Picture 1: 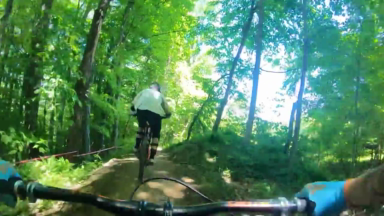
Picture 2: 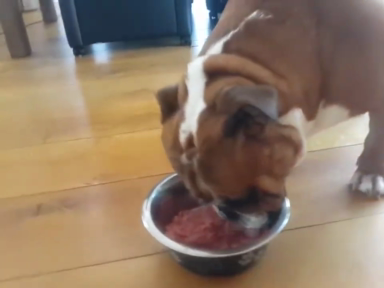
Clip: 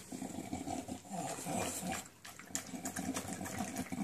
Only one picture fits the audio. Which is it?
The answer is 2